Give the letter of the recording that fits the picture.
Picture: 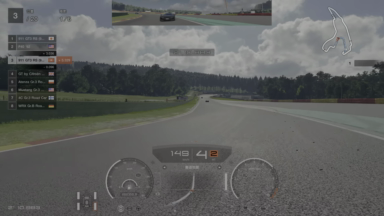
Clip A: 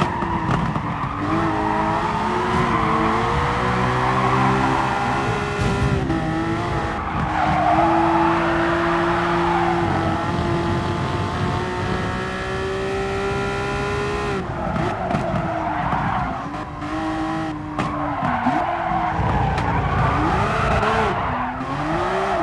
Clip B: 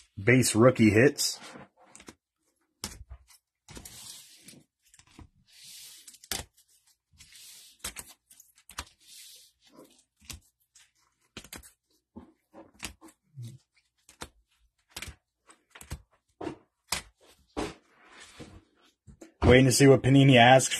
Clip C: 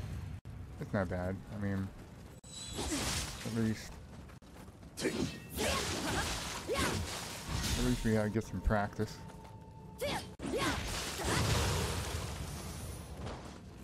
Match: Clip A